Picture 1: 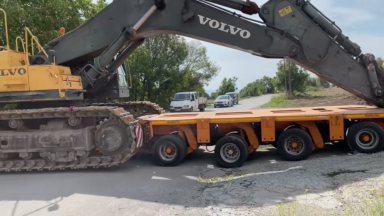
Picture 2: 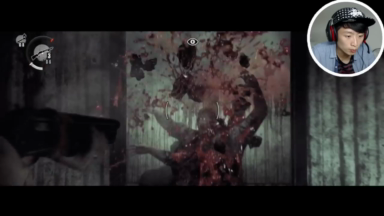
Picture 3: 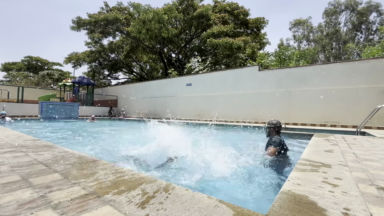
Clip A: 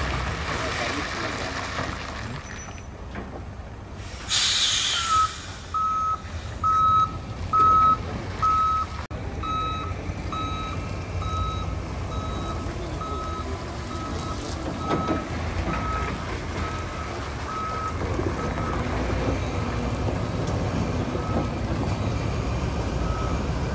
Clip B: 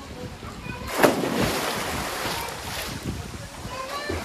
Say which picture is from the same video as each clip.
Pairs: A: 1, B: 3